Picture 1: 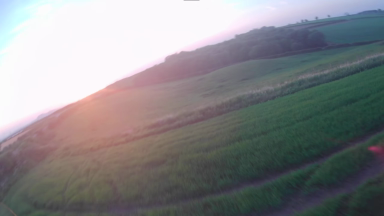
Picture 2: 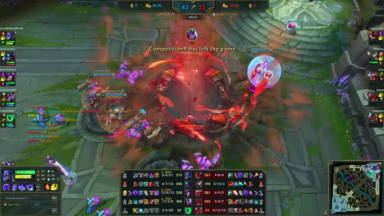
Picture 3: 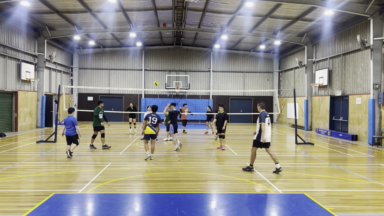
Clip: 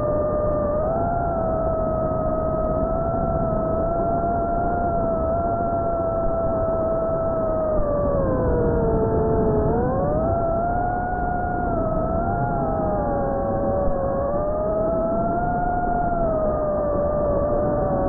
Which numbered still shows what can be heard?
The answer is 1